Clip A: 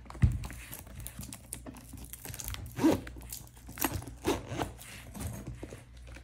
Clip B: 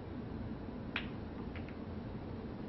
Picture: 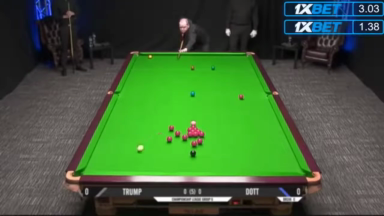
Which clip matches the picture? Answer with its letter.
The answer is B